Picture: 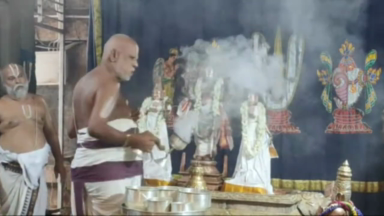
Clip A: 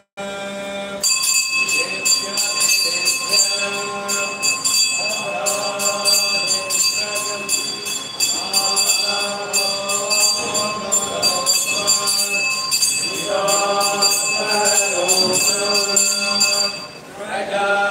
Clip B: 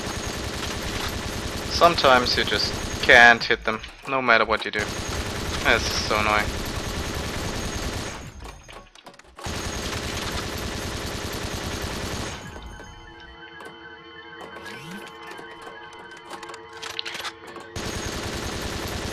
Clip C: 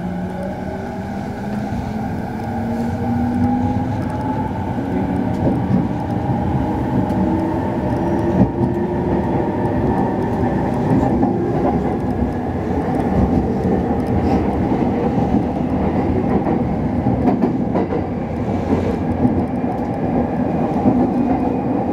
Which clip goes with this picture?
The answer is A